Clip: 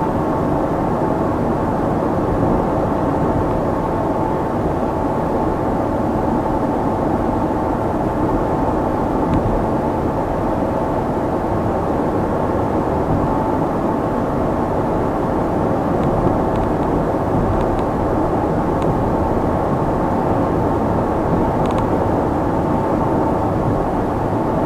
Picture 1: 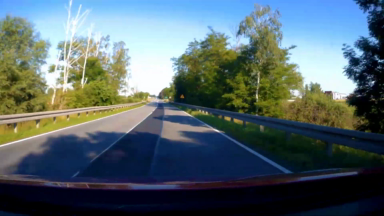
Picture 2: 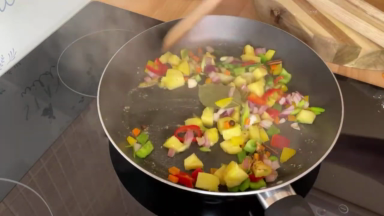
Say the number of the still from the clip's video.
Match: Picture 1